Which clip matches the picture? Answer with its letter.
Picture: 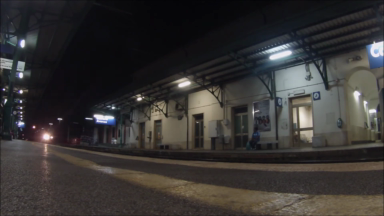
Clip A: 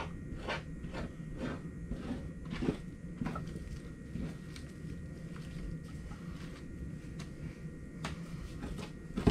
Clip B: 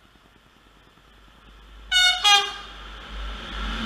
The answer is B